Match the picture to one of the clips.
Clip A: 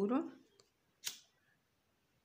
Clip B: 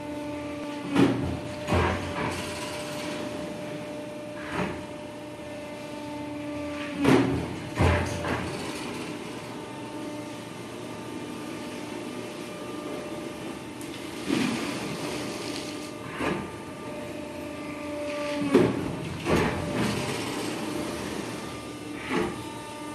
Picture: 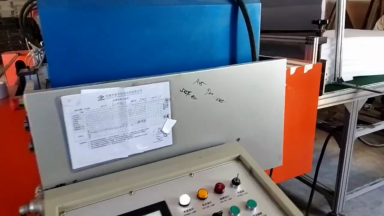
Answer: B